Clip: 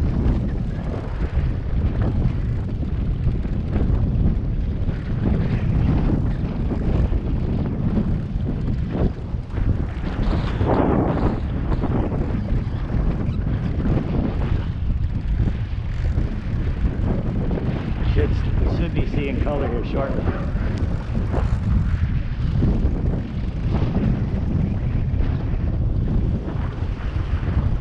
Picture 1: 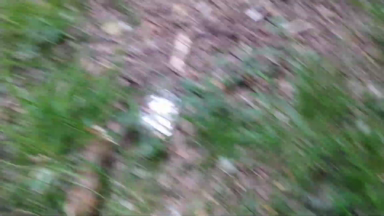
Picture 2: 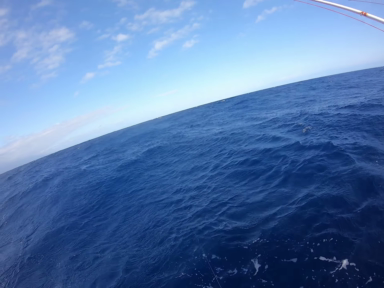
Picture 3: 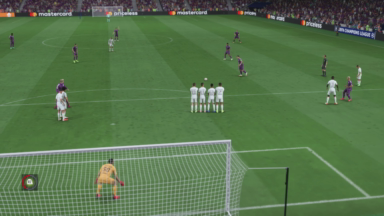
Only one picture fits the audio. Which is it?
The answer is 2